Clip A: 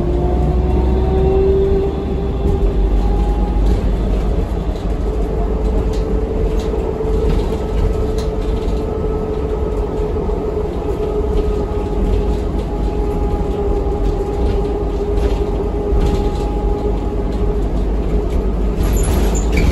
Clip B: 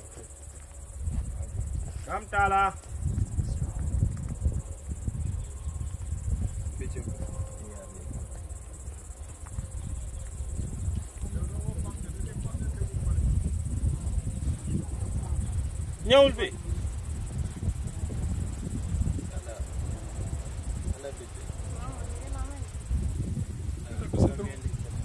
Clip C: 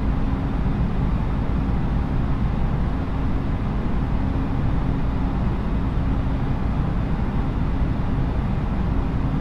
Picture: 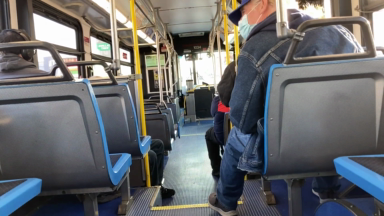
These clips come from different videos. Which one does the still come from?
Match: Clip A